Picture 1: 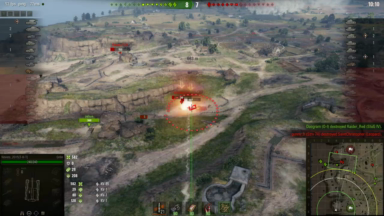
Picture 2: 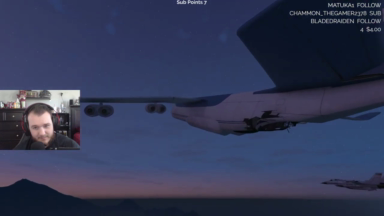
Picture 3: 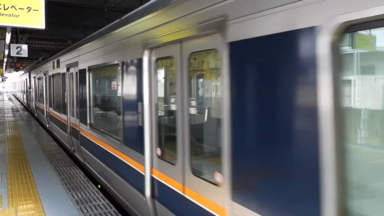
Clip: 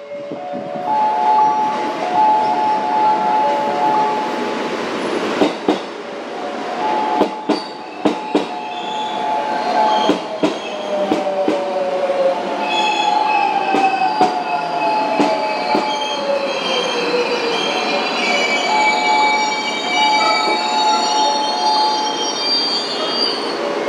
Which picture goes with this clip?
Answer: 3